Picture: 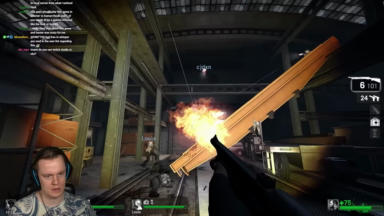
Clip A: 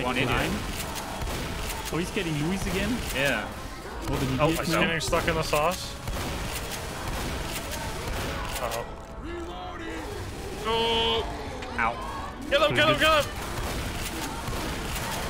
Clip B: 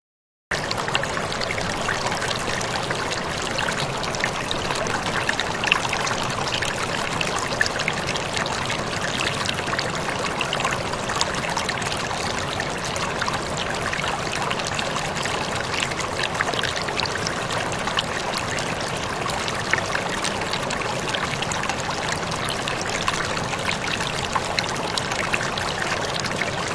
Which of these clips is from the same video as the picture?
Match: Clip A